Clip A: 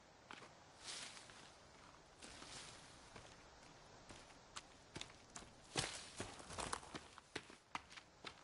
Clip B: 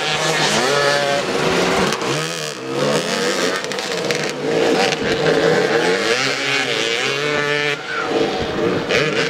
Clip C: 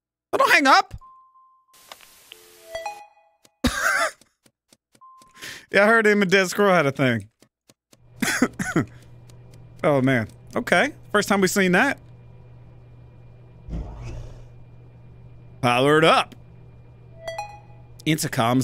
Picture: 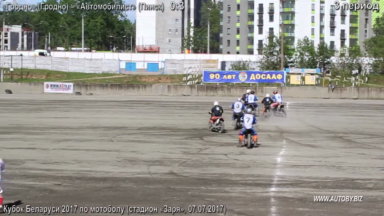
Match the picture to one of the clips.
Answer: B